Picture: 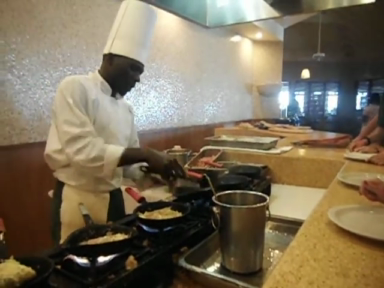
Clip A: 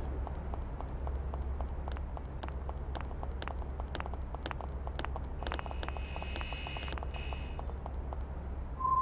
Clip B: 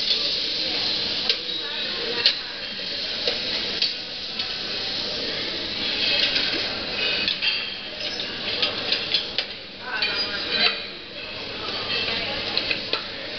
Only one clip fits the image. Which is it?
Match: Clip B